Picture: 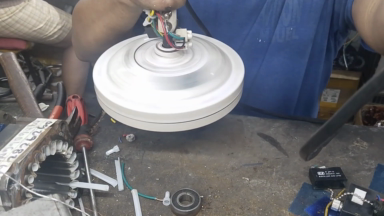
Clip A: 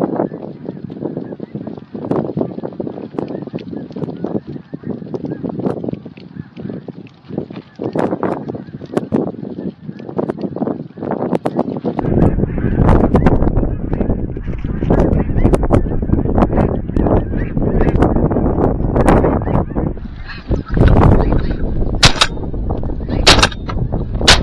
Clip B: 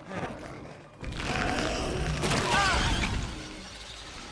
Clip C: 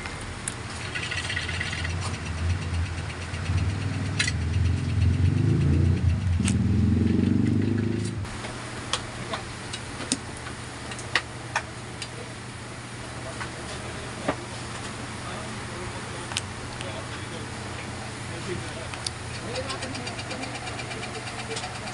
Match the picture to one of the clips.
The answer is C